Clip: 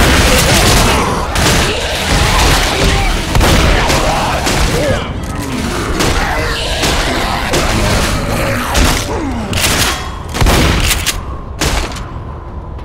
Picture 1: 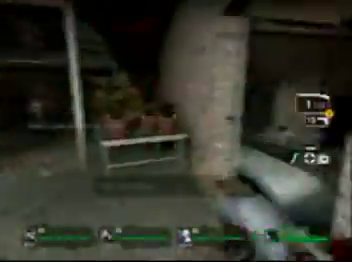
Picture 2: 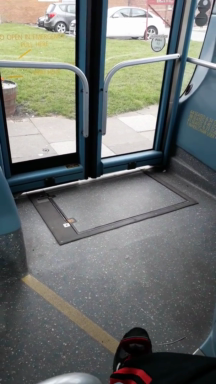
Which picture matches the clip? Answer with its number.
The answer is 1